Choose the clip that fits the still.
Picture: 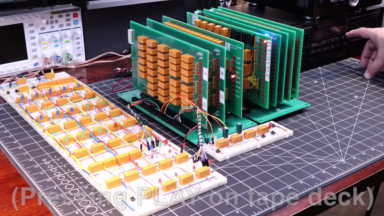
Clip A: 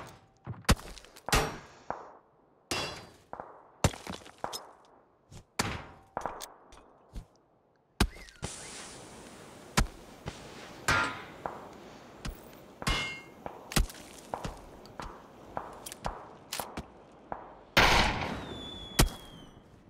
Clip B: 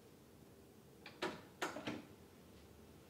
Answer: B